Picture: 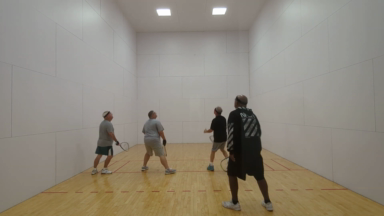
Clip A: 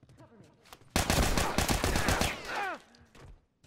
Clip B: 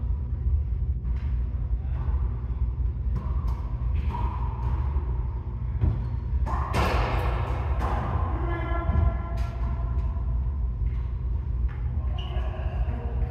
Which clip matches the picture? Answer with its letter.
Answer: B